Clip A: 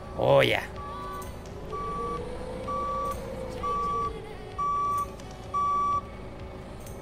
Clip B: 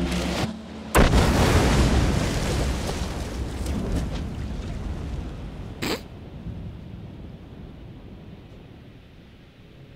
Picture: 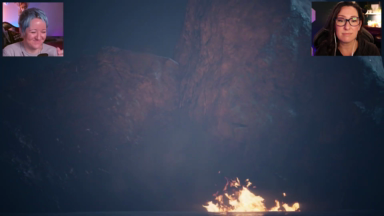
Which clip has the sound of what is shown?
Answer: B